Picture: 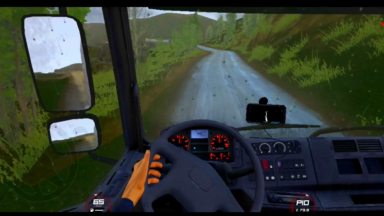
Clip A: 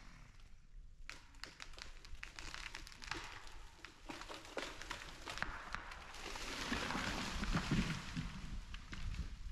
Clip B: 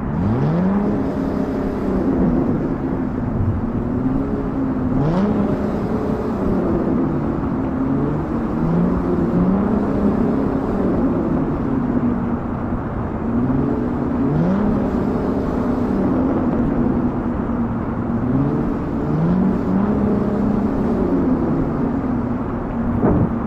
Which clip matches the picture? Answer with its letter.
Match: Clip B